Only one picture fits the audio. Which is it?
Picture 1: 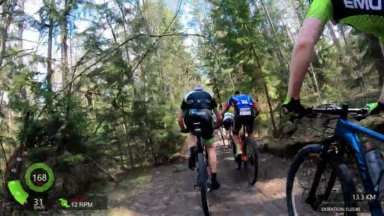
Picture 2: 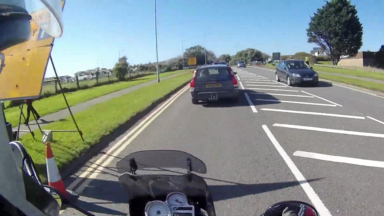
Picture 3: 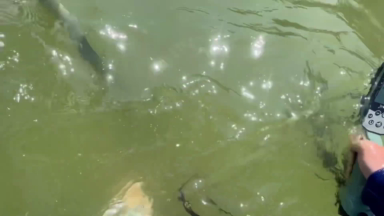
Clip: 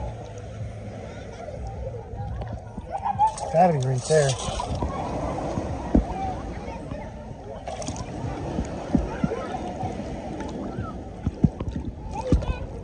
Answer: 3